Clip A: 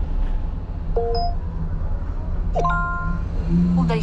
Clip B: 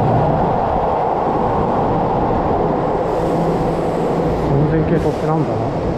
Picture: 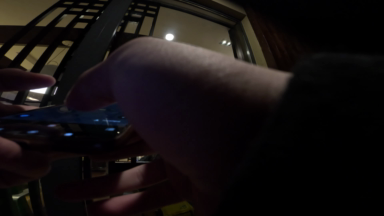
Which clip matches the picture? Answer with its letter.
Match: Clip A